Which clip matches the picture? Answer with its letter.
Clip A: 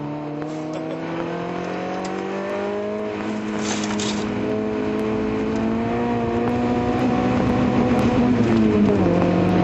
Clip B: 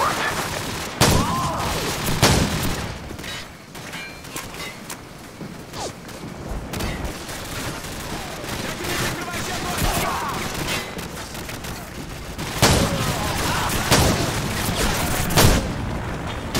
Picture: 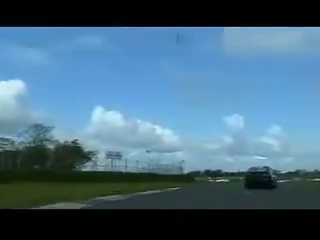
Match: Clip A